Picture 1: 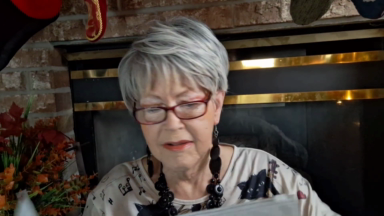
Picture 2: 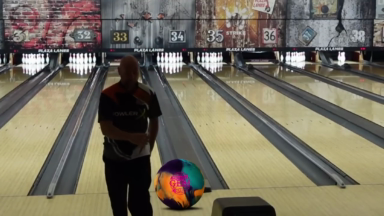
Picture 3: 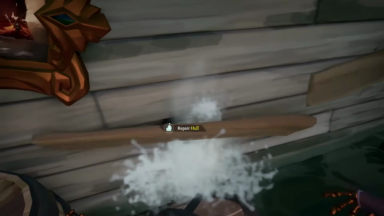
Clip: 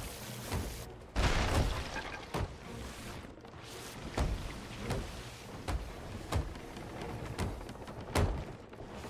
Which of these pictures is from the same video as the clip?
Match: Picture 3